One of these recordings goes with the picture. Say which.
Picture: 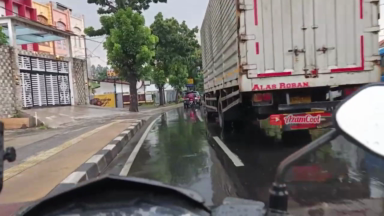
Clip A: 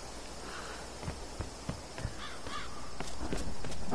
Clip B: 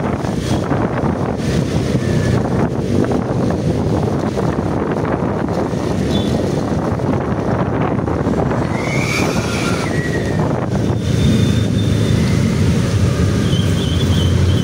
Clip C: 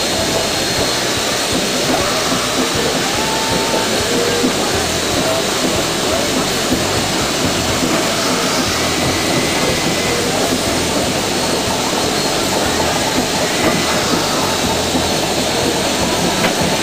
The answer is B